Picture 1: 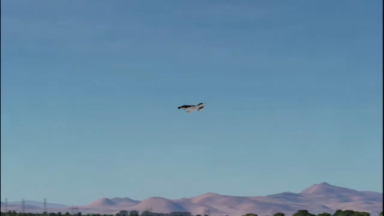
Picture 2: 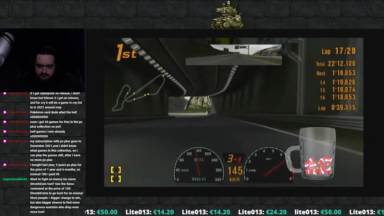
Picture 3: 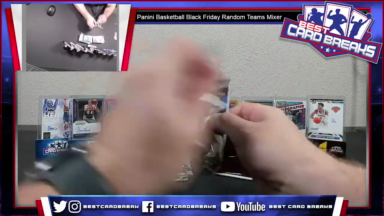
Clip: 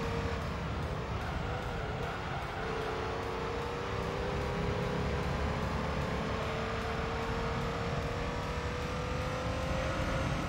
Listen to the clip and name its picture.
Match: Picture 2